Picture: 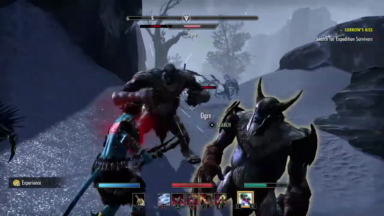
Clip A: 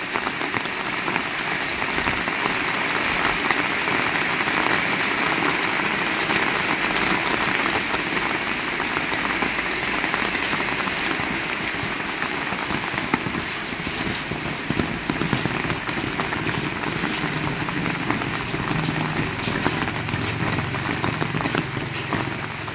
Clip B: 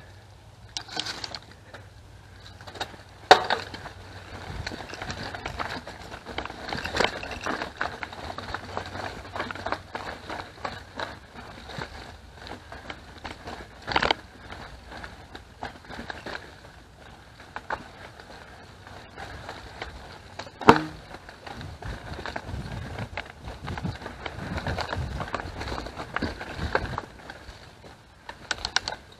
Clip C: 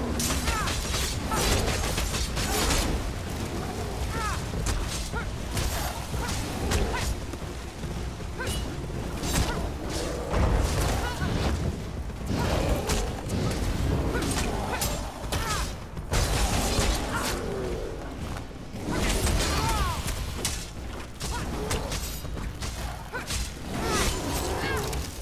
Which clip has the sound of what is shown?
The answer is C